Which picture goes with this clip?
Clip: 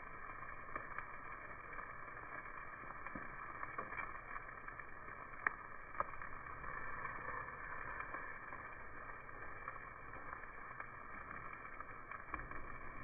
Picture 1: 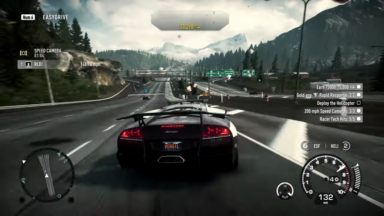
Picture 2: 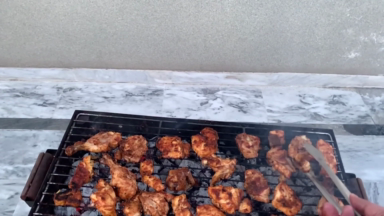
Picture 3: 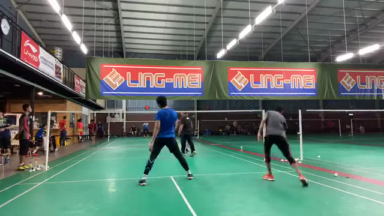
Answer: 2